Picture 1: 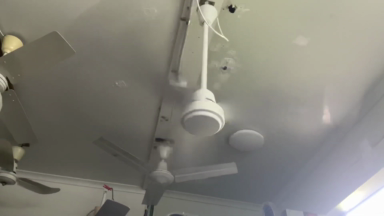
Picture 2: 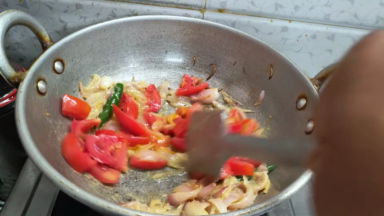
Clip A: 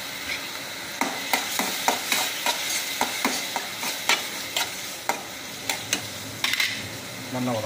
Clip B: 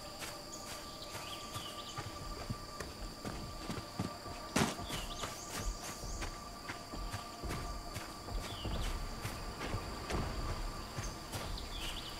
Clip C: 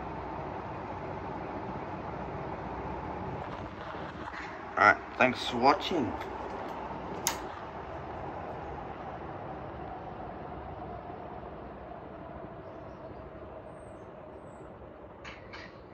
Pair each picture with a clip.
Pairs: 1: C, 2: A